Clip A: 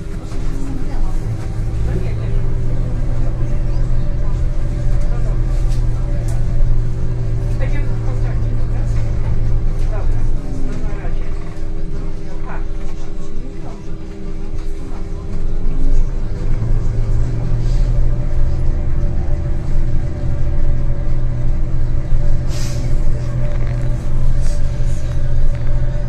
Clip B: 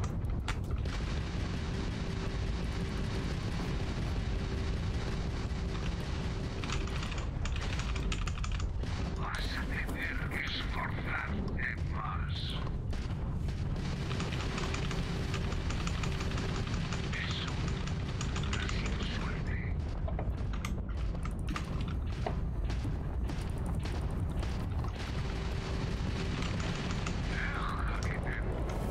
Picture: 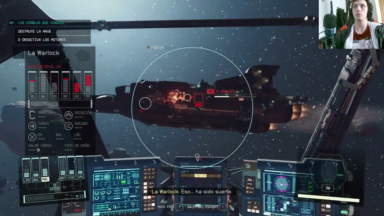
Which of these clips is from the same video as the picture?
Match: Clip B